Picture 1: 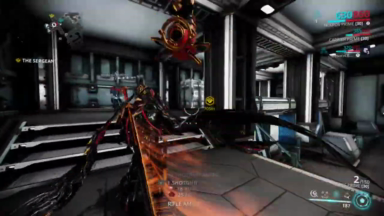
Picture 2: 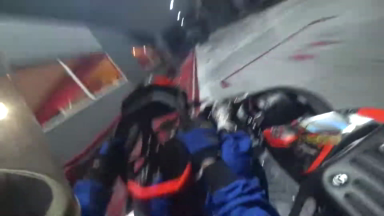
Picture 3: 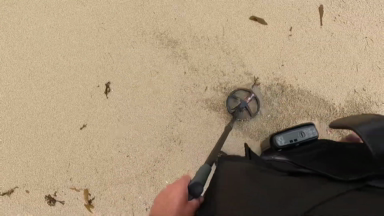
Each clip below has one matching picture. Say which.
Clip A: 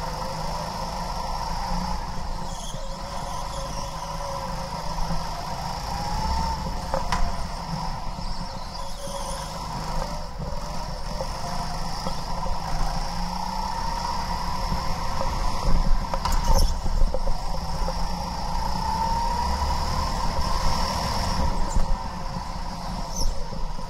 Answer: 2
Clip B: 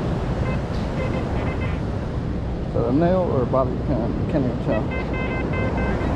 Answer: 3